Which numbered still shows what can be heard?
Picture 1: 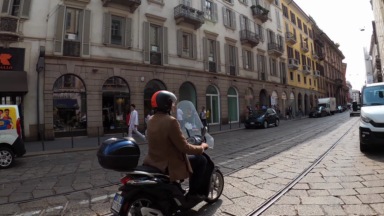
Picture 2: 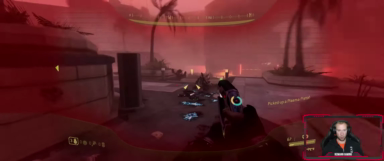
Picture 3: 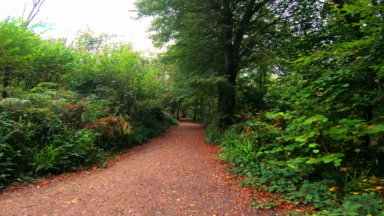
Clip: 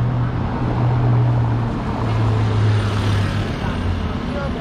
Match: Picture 1